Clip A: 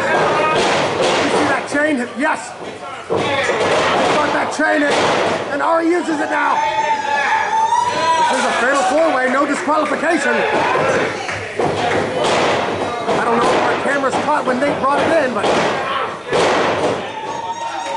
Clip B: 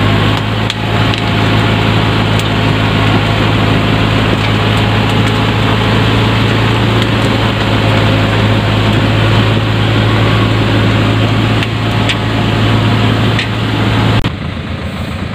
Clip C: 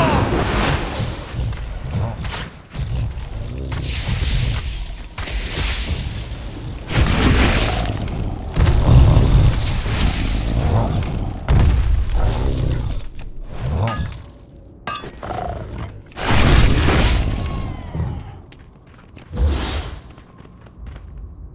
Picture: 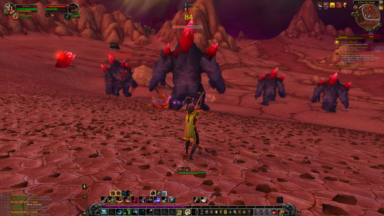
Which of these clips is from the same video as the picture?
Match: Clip C